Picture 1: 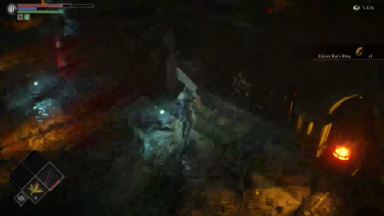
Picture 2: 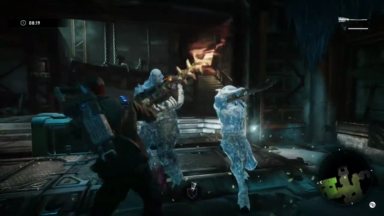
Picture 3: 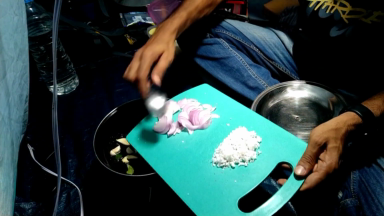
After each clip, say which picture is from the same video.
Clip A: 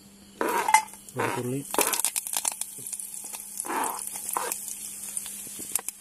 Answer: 3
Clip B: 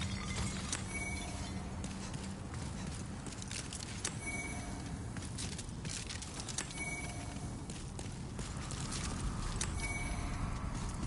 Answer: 1